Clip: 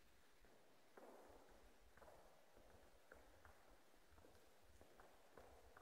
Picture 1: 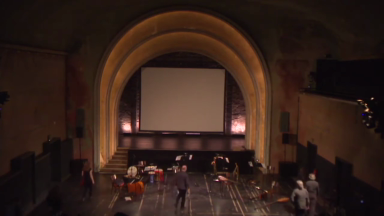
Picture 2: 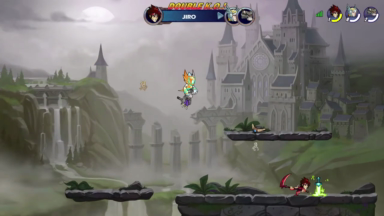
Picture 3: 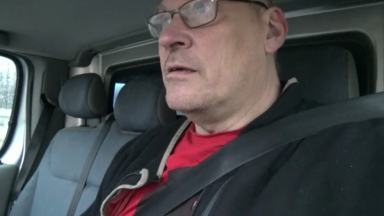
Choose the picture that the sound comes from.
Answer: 1